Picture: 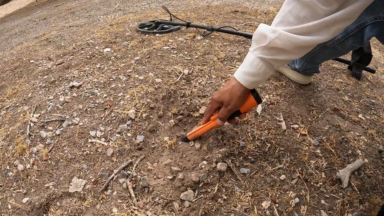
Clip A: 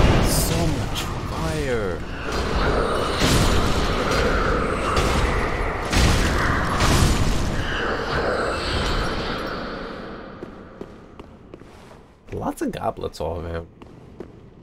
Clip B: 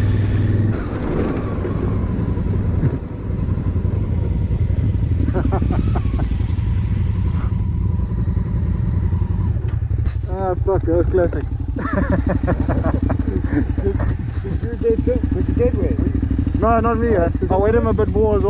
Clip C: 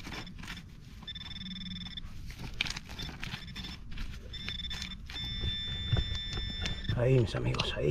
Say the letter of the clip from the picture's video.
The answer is C